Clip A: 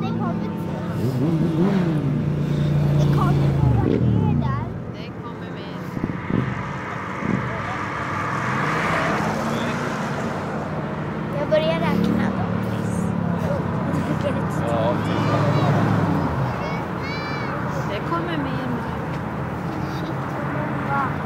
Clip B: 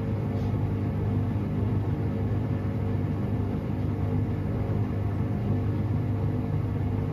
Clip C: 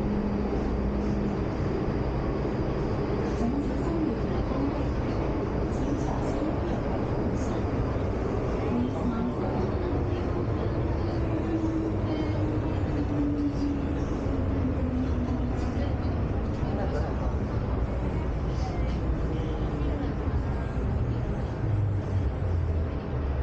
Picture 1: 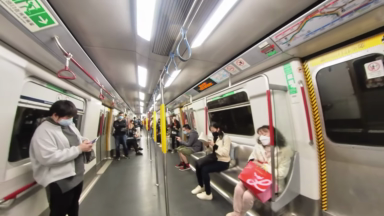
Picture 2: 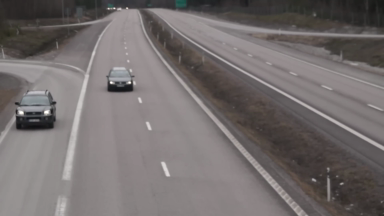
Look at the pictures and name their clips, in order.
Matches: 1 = C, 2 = A